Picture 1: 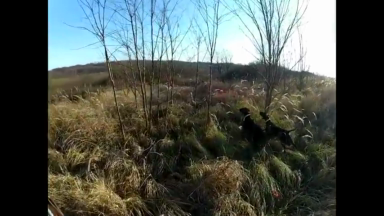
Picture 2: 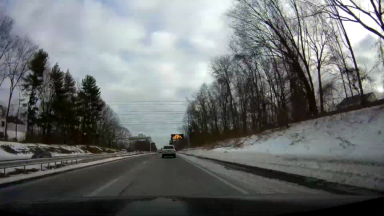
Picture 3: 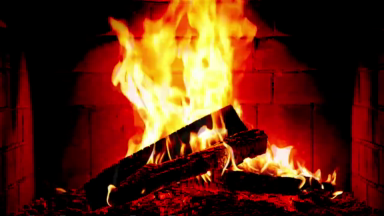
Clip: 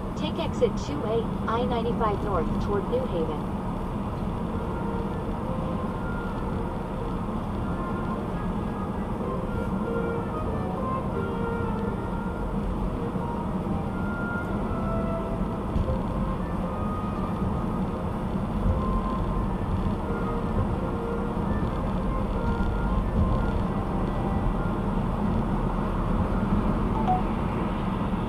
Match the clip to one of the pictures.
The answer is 2